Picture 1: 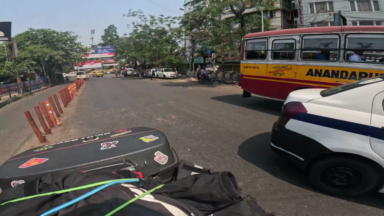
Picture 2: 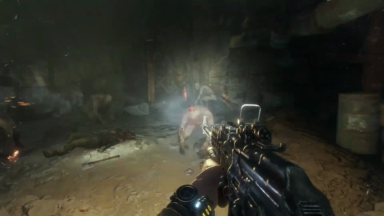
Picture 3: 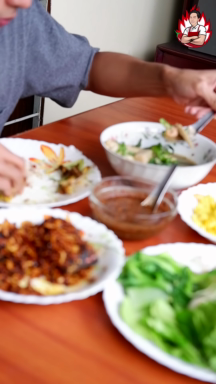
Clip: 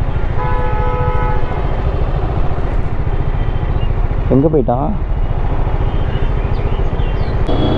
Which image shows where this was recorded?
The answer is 1